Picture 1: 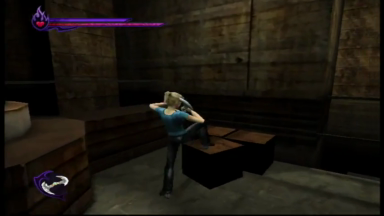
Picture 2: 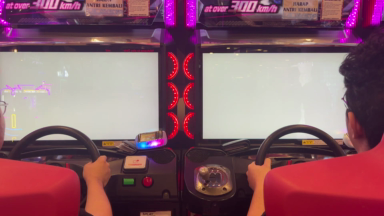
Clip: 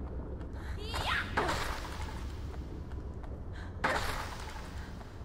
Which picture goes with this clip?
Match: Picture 1